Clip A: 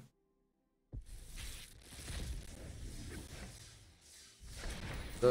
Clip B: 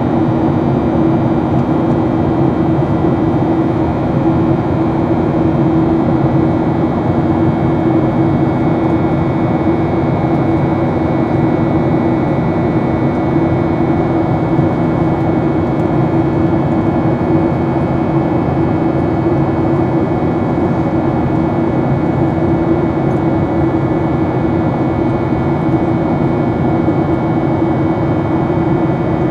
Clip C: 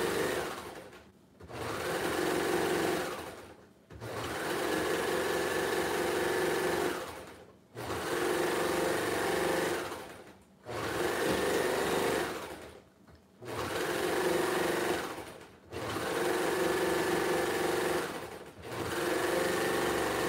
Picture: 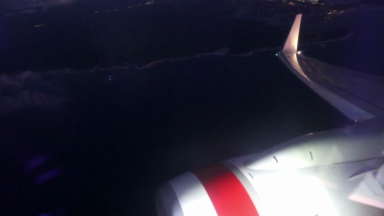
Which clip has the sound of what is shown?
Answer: B